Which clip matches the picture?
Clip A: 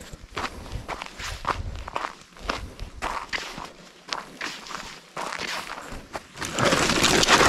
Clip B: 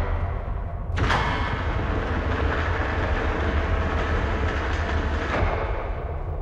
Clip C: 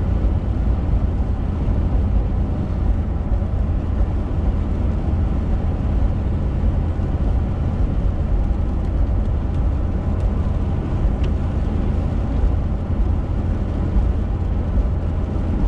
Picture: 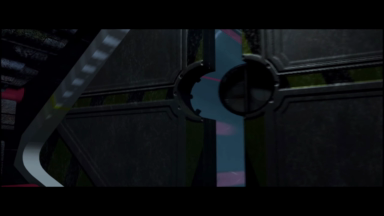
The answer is B